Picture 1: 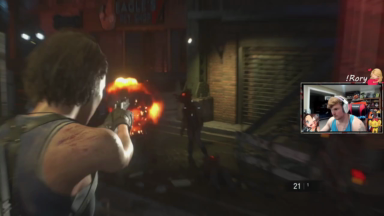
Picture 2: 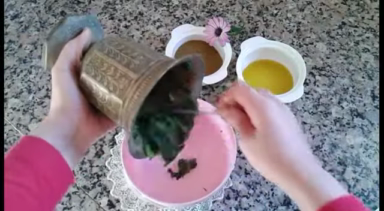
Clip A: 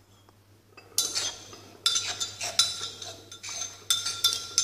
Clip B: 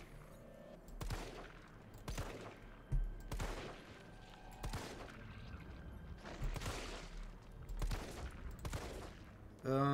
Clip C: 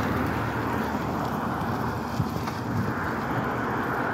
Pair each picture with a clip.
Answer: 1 B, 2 A